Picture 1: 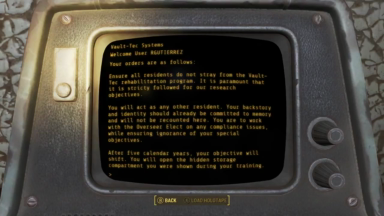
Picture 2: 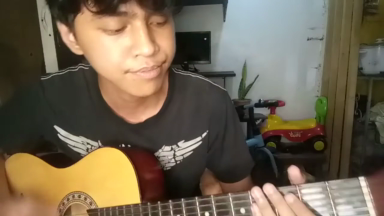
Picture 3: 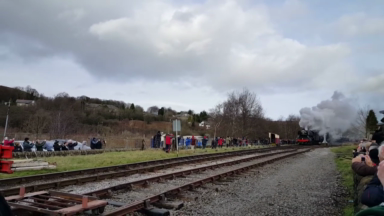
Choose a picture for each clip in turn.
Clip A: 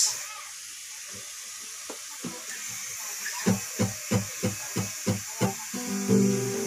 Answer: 2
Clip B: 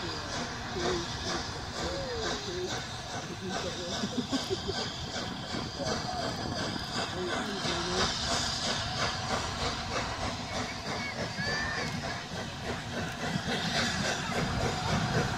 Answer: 3